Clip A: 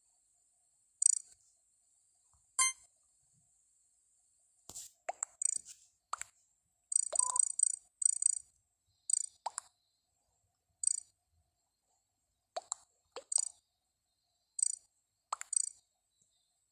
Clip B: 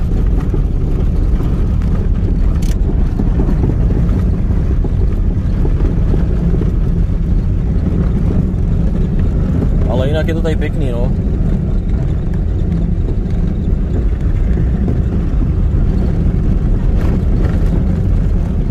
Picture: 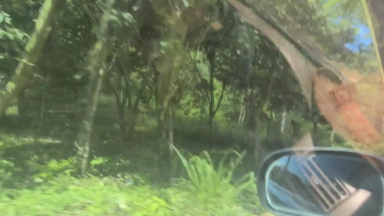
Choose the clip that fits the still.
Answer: B